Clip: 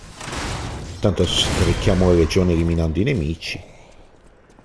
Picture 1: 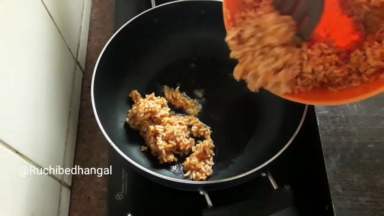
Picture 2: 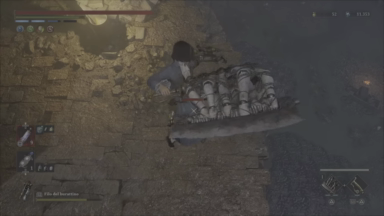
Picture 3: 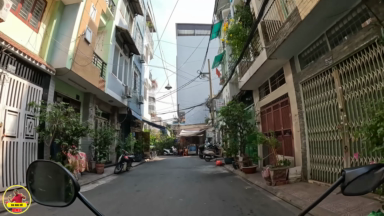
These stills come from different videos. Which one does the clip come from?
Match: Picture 2